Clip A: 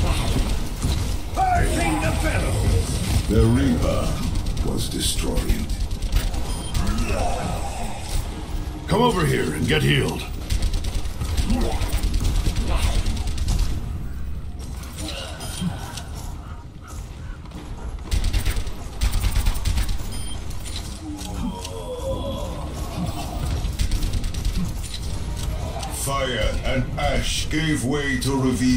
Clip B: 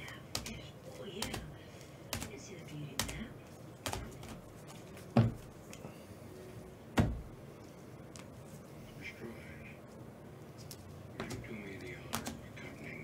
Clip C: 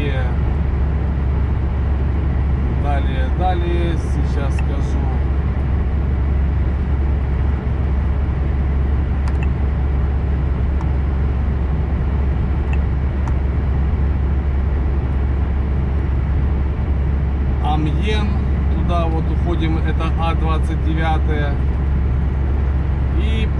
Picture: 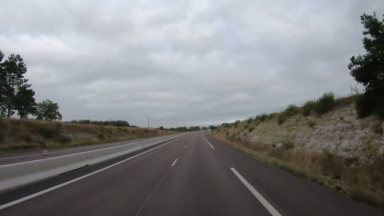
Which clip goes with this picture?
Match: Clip C